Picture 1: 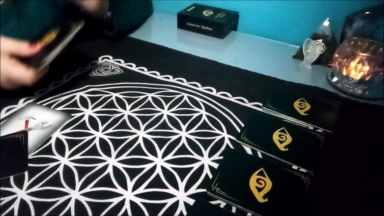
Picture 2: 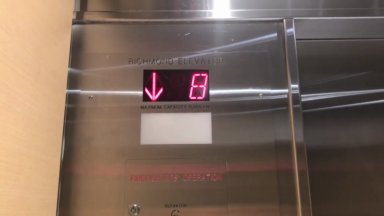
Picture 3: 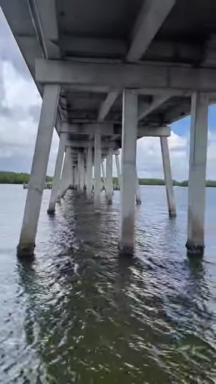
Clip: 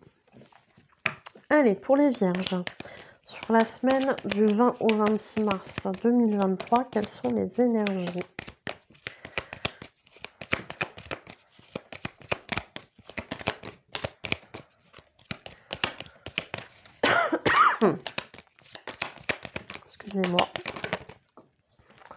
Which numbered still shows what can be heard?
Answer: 1